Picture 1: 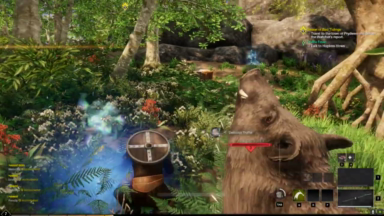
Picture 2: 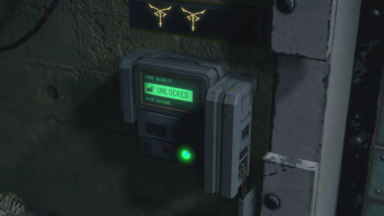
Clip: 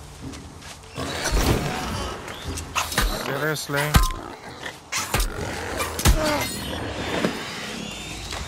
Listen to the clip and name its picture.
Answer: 1